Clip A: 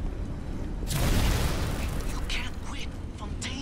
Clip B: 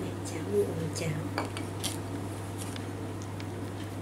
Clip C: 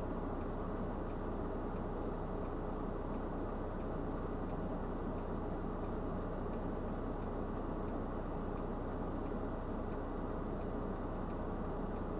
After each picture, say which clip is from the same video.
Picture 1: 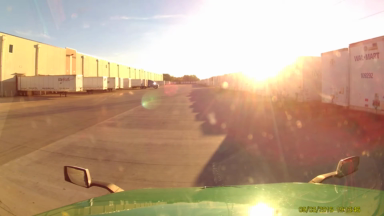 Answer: C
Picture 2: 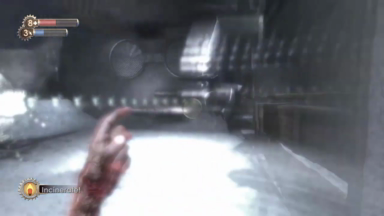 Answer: A